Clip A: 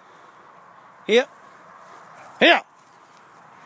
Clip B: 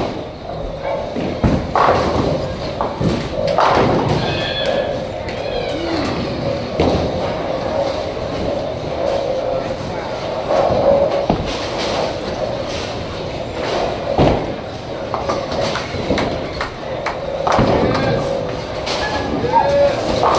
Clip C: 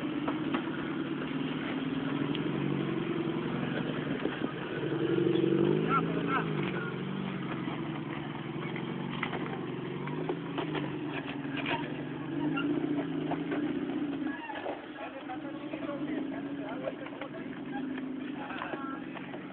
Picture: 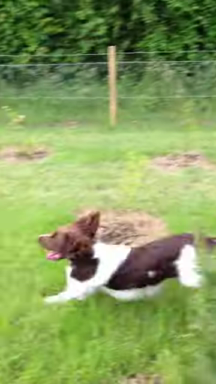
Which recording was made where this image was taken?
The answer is A